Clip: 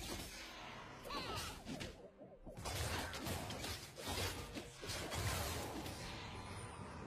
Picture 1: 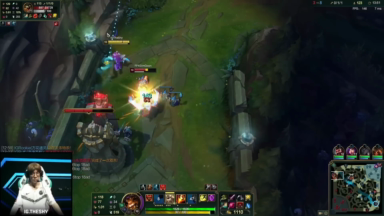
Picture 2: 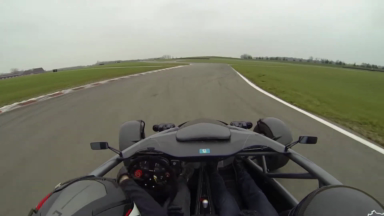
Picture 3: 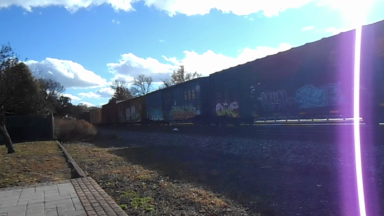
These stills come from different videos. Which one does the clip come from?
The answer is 1